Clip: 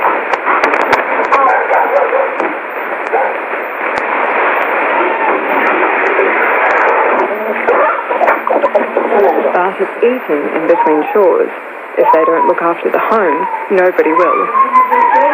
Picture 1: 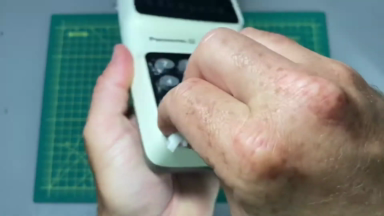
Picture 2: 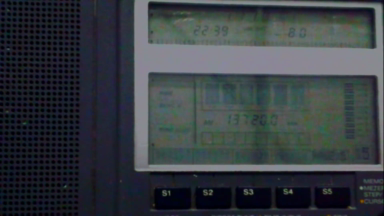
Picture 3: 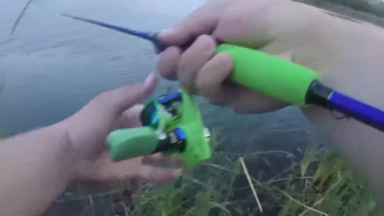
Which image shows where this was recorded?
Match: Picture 2